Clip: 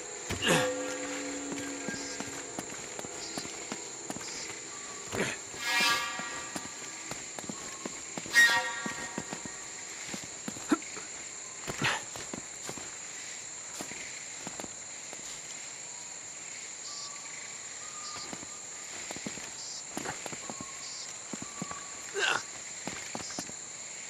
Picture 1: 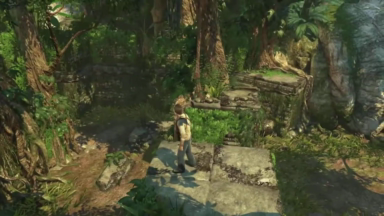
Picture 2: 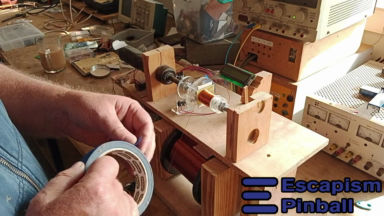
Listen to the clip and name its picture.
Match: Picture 1